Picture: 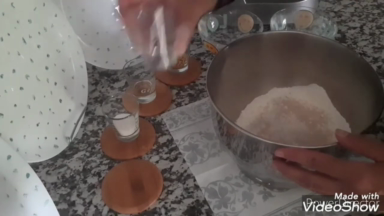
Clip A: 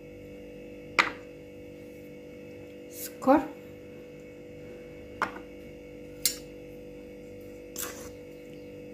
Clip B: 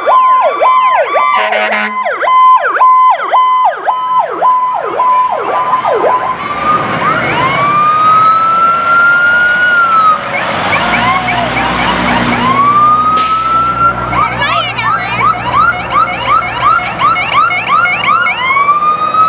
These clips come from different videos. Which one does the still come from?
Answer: A